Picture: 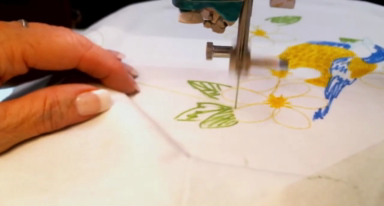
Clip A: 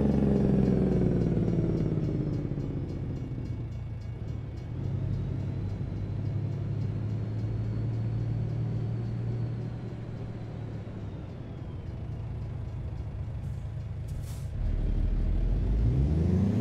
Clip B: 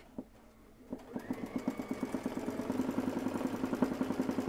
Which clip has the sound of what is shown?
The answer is B